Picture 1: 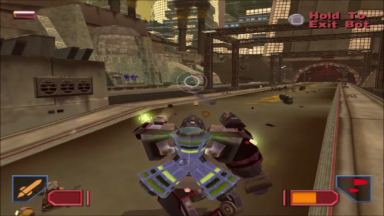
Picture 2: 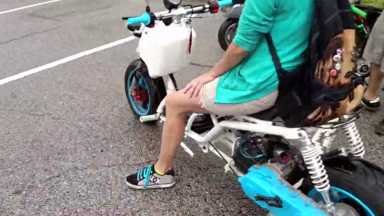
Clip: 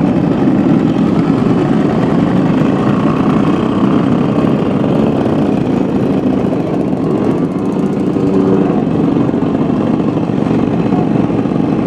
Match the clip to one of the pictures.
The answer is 2